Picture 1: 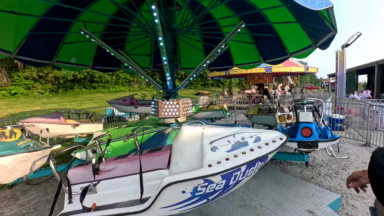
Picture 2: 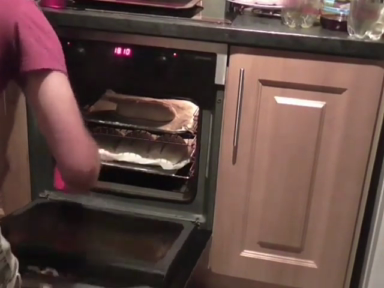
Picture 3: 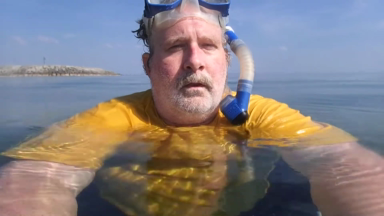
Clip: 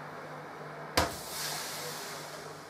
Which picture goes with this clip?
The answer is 2